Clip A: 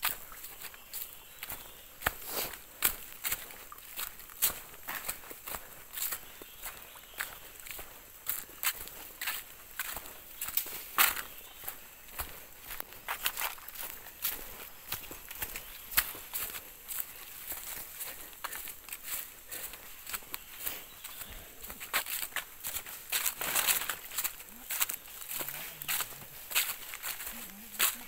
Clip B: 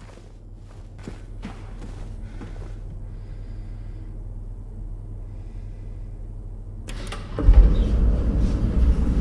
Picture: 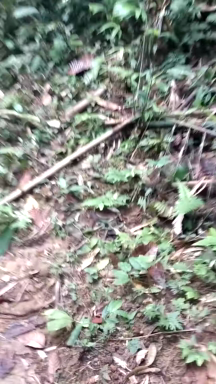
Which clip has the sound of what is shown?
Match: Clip A